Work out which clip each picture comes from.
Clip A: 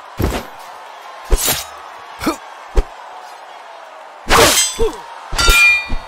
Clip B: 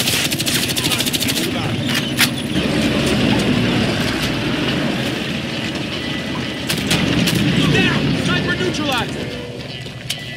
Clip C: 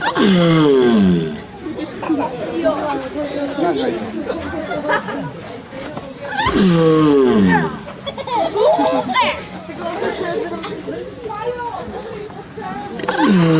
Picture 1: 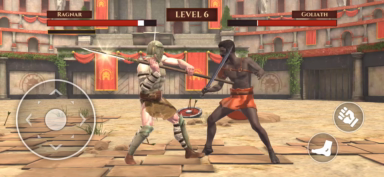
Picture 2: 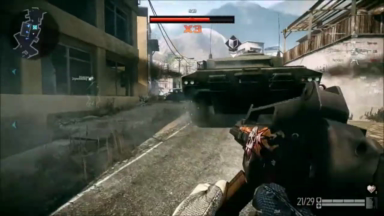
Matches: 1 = A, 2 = B